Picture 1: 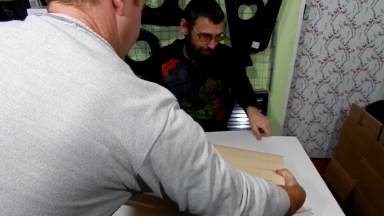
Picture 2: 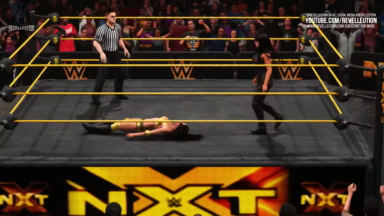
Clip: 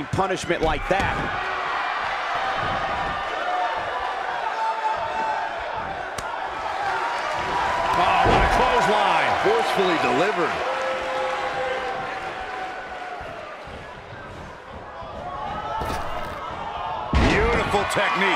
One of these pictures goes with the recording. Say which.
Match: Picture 2